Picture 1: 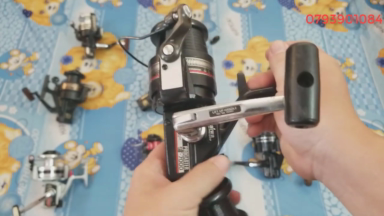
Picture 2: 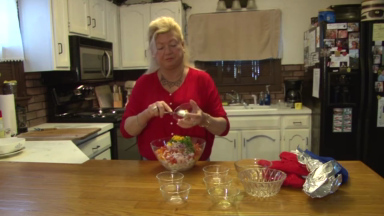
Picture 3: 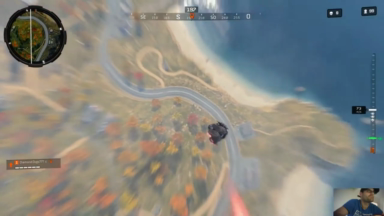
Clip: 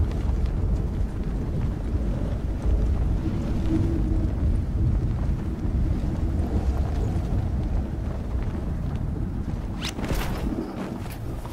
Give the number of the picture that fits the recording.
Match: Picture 3